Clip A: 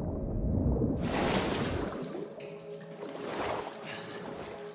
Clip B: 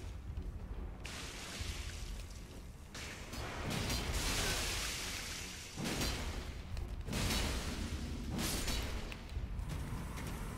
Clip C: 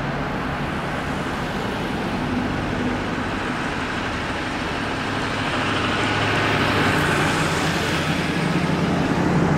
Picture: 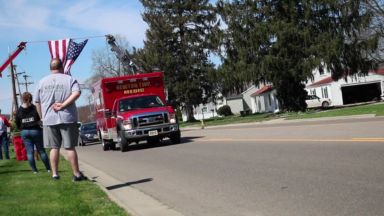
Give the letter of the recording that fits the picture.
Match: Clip C